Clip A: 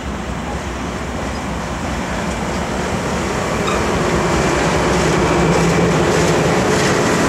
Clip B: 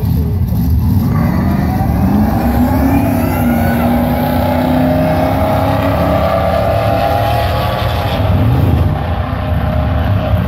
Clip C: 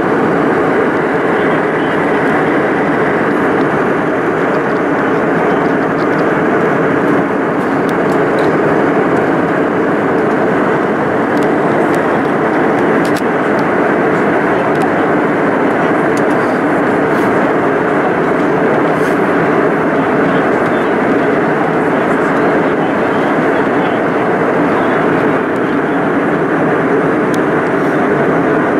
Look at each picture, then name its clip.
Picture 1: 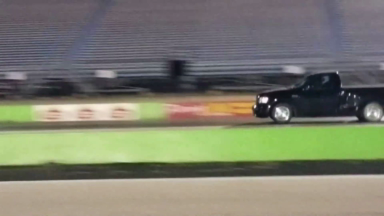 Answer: B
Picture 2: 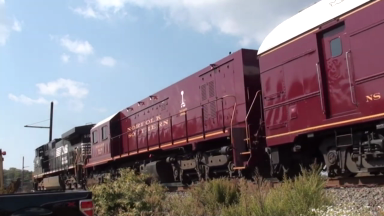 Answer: A